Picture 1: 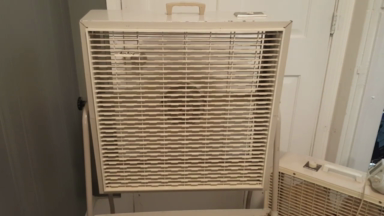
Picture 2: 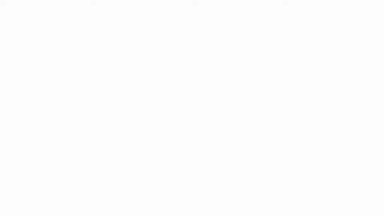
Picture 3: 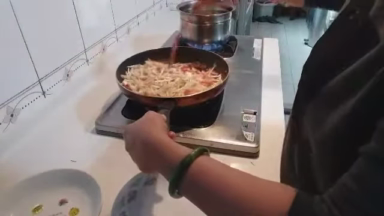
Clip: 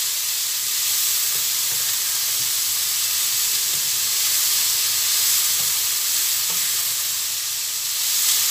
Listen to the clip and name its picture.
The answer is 3